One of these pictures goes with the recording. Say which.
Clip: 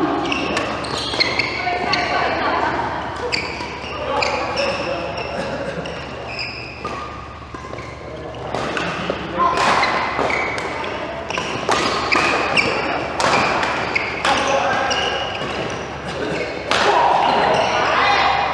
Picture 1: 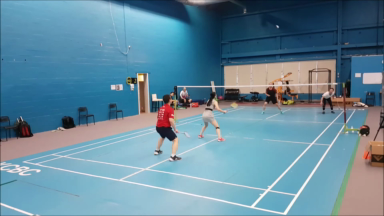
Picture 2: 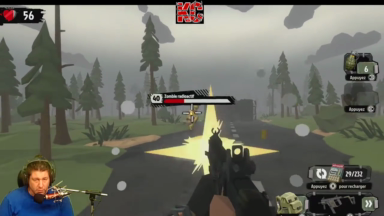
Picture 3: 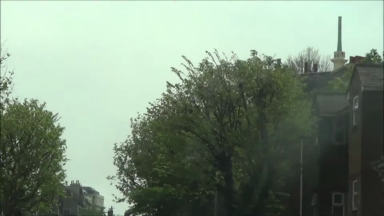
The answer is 1